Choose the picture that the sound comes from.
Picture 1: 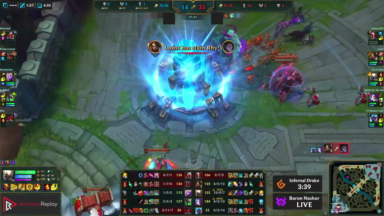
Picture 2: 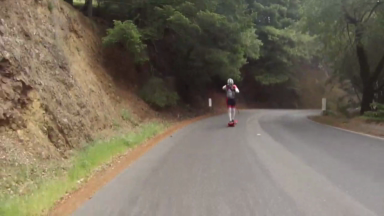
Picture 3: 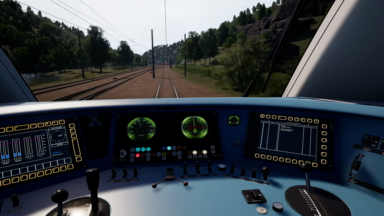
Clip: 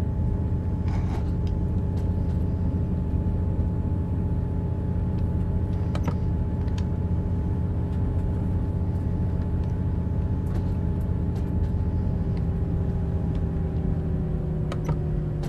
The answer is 3